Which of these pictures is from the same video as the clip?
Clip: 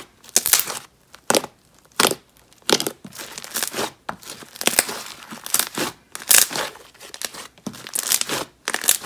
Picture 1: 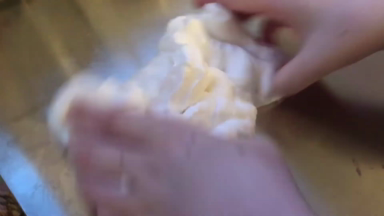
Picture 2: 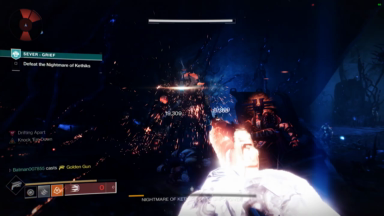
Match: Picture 1